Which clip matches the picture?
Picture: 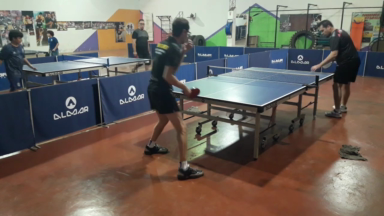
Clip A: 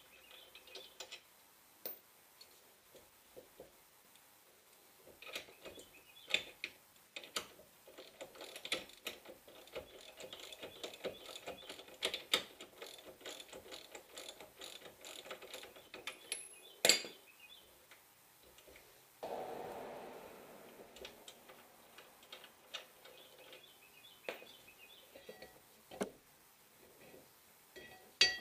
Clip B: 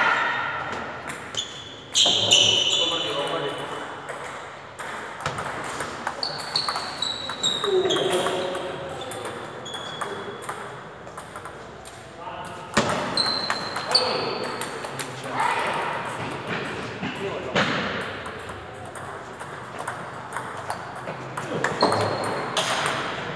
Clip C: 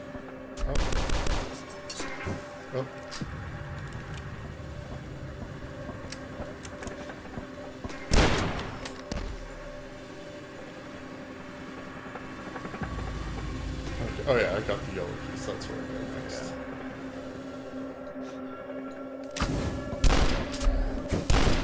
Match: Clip B